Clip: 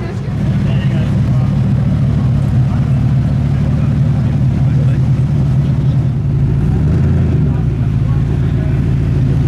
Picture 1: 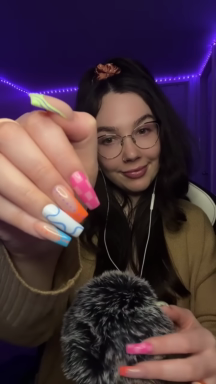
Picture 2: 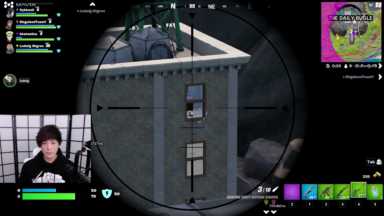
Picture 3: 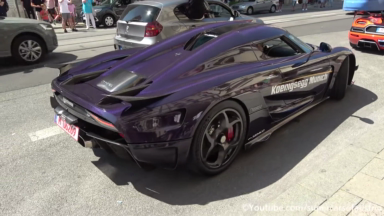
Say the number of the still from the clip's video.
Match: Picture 3